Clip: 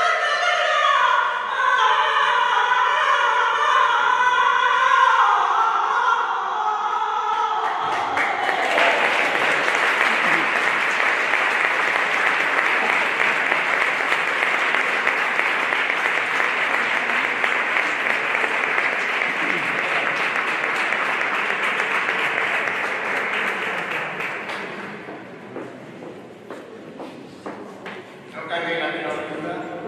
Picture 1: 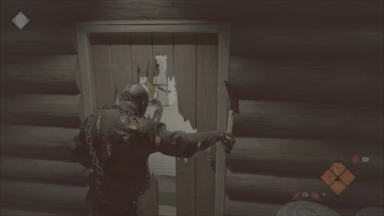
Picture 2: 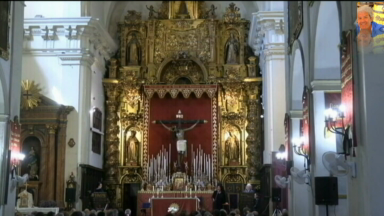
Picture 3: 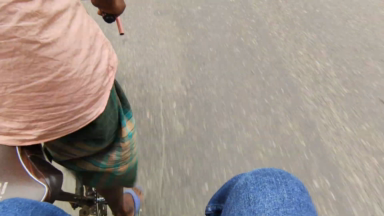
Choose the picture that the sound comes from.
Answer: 2